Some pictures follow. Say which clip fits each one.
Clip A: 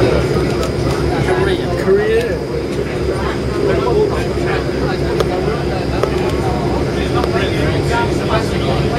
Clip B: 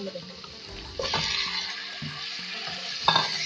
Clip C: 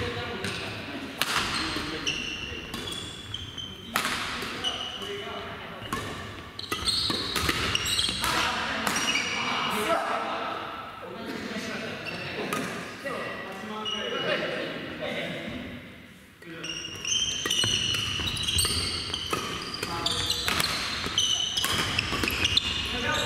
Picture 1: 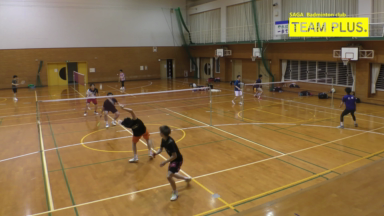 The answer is C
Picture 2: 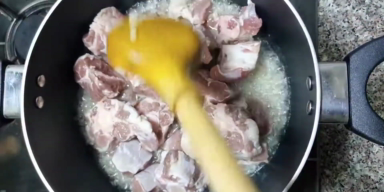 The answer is B